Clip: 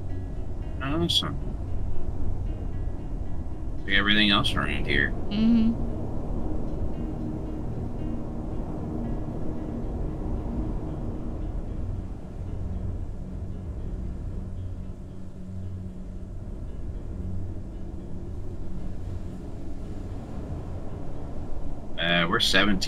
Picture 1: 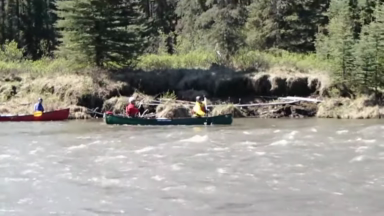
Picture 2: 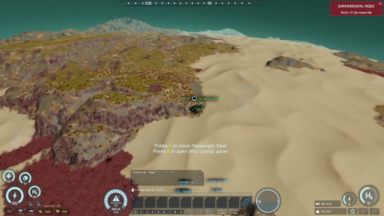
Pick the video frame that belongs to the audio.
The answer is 2